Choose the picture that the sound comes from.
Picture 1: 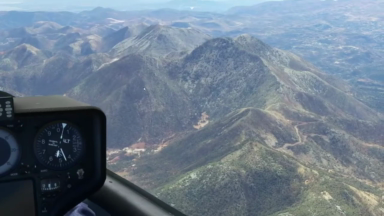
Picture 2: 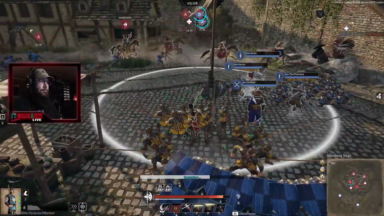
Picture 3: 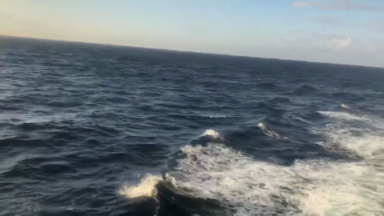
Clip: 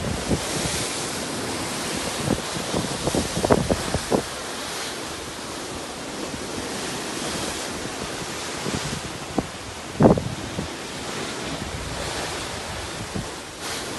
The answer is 3